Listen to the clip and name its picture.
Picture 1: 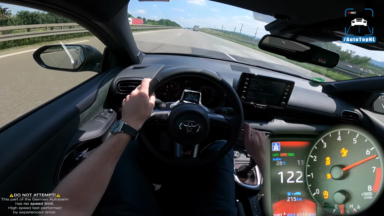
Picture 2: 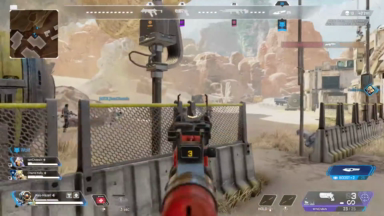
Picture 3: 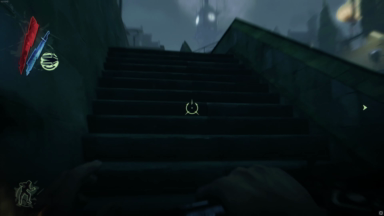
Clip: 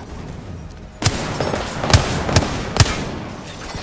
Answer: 2